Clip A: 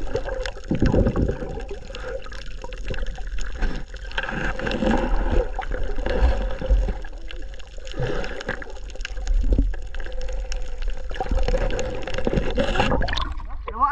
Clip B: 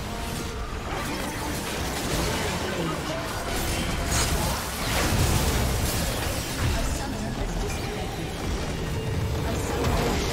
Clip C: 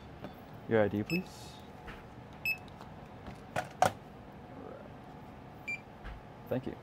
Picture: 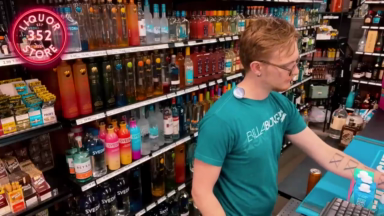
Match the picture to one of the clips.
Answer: C